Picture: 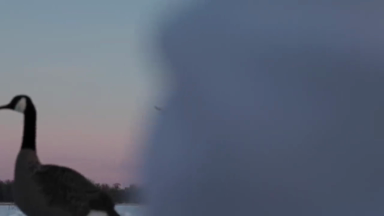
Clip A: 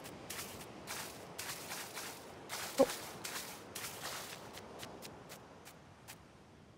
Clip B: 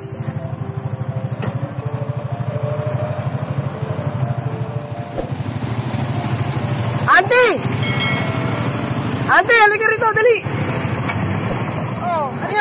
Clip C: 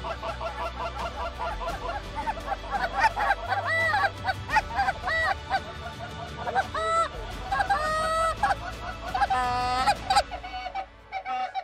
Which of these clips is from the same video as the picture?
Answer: C